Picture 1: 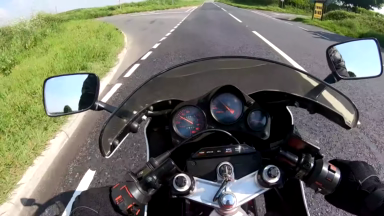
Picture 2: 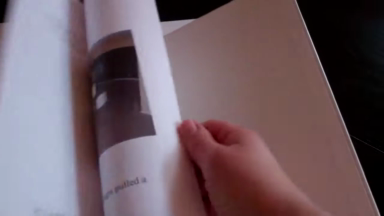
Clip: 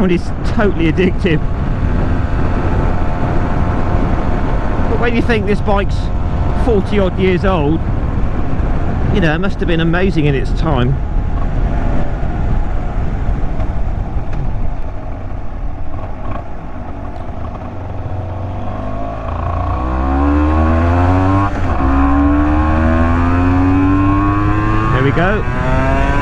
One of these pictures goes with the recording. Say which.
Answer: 1